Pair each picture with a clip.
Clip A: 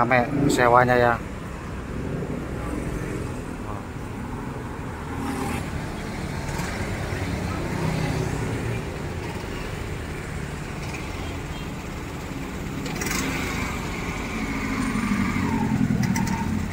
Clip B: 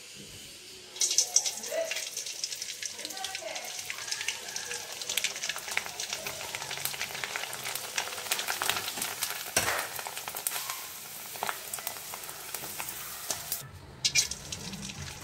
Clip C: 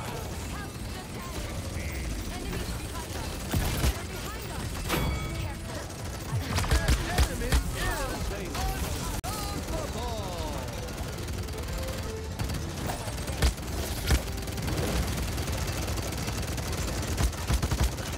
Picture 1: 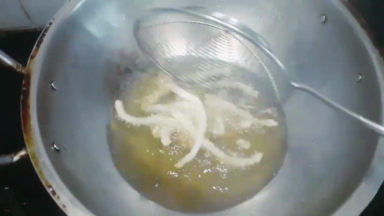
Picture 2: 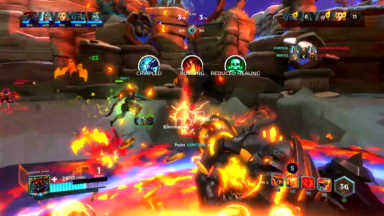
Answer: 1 B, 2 C